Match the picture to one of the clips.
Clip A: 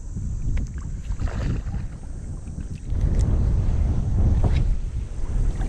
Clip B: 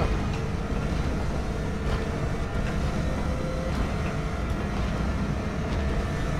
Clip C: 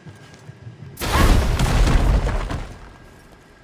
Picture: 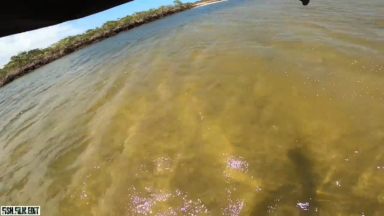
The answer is A